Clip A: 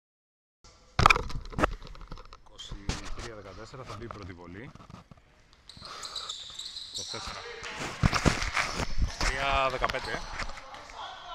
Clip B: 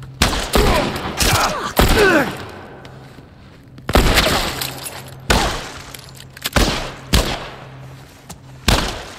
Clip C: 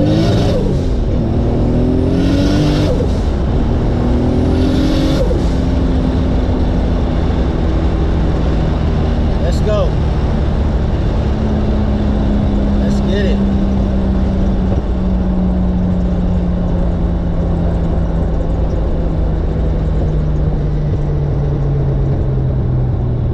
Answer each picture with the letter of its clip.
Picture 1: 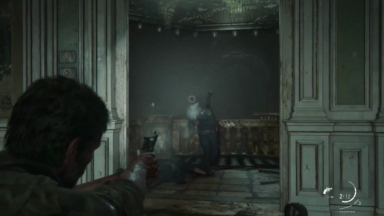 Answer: B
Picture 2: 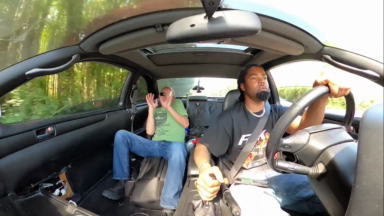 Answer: C